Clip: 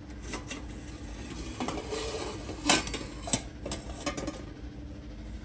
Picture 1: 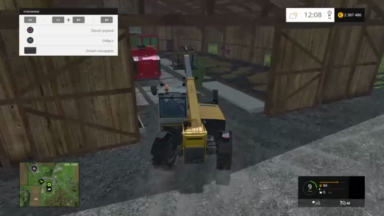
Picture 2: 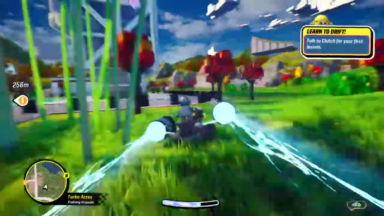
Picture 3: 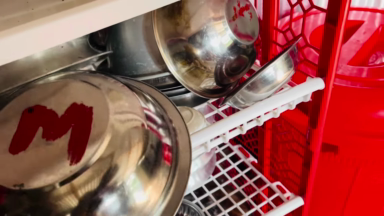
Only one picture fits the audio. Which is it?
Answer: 3